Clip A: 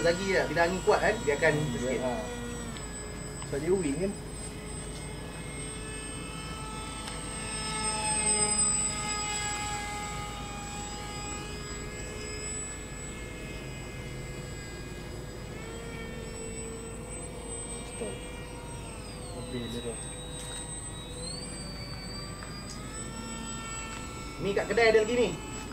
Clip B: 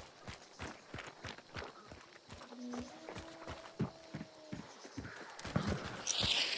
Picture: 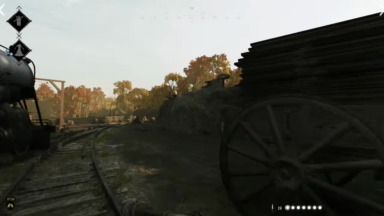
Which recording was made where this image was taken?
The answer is B